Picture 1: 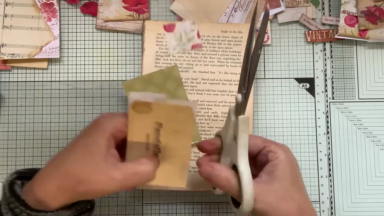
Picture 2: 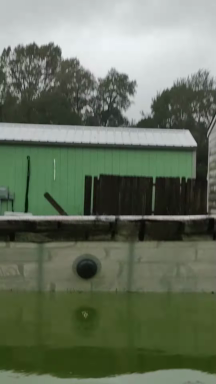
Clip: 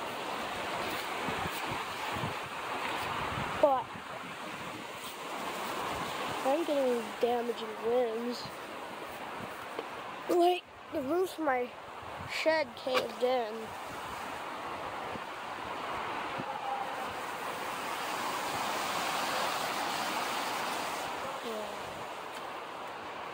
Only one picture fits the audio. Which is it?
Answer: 2